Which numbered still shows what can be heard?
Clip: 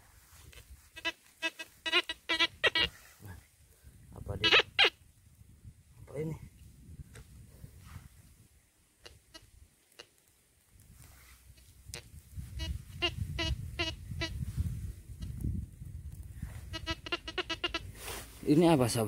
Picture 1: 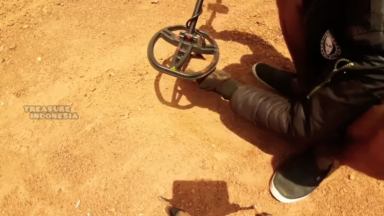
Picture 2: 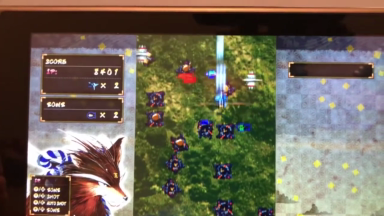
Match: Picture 1